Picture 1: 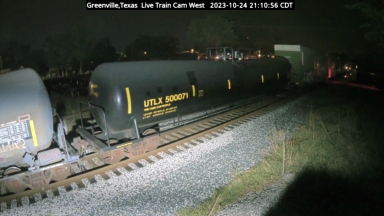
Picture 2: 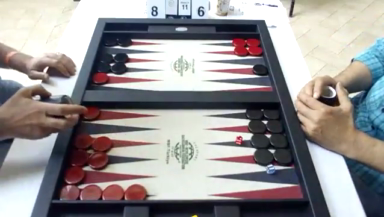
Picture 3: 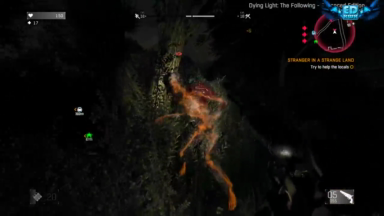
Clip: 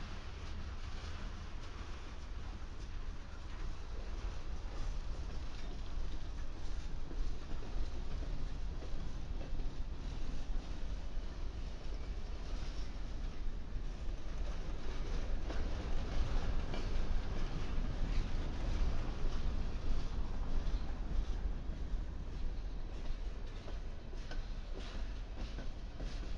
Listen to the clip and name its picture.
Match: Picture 1